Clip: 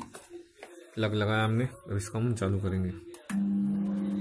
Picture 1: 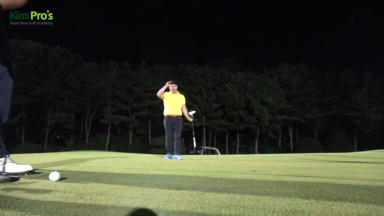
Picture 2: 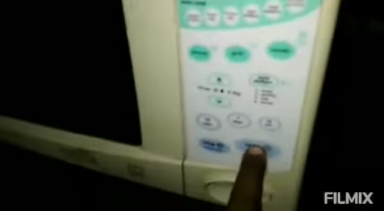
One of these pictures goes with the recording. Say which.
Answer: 2